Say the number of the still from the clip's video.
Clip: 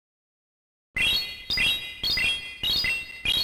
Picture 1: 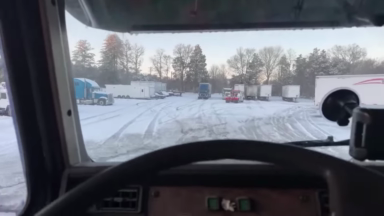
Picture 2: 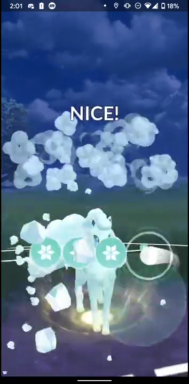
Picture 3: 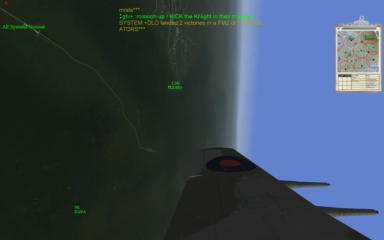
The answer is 2